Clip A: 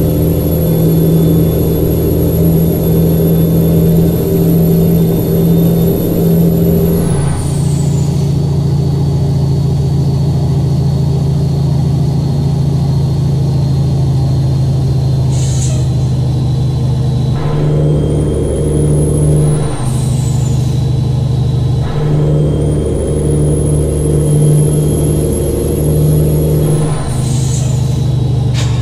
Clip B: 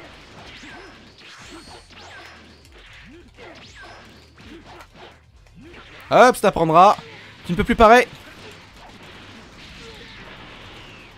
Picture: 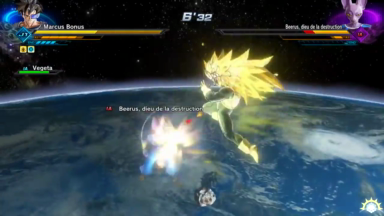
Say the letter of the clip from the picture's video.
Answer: B